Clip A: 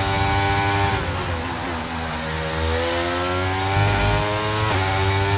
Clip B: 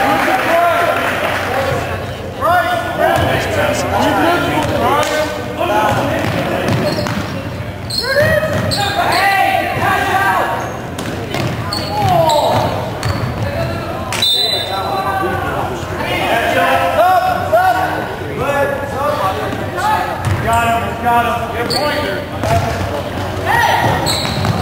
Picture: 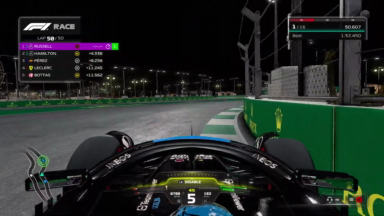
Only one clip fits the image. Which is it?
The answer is A